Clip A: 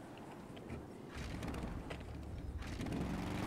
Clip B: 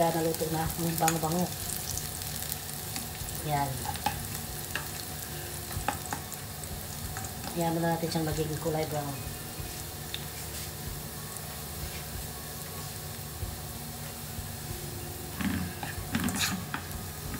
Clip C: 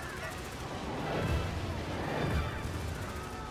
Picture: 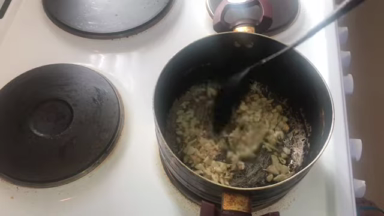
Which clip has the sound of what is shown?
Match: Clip B